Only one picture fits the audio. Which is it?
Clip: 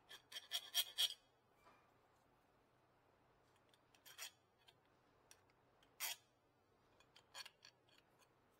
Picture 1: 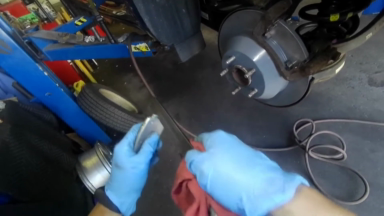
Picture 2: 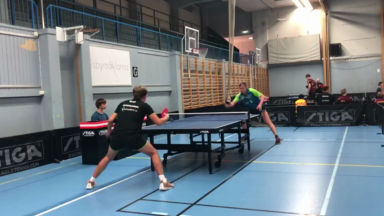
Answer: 1